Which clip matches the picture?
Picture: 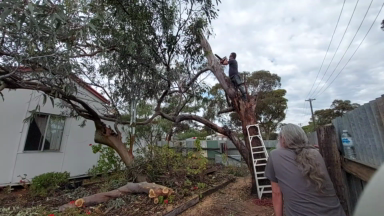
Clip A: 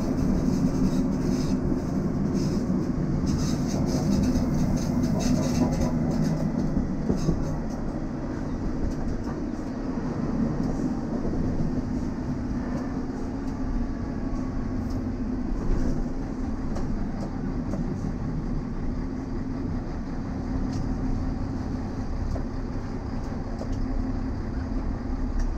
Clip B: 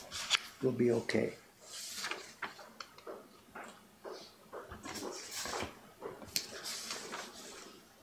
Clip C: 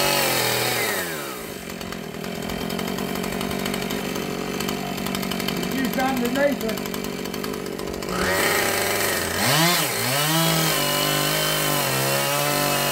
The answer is C